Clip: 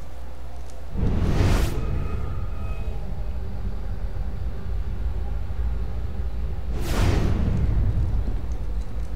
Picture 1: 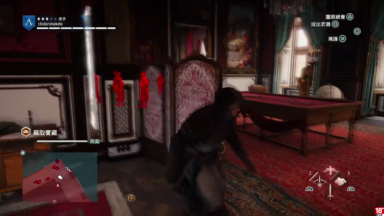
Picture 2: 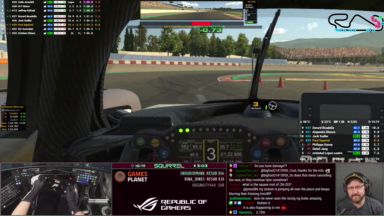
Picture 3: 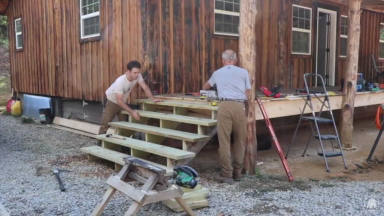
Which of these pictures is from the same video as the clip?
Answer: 1